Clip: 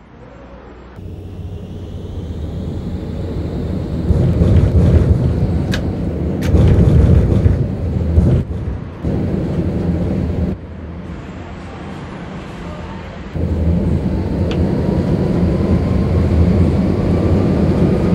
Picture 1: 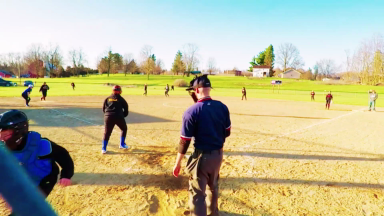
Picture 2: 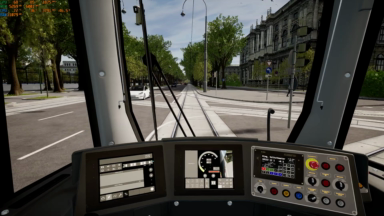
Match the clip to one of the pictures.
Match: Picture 2